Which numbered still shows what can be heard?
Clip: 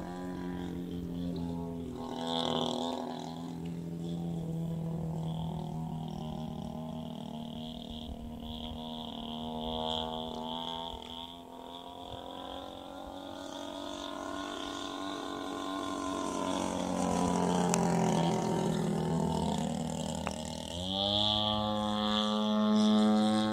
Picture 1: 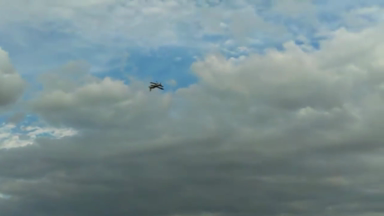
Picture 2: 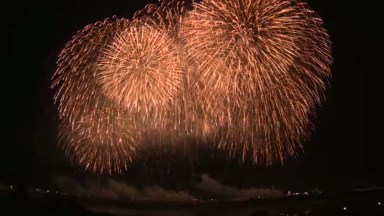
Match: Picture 1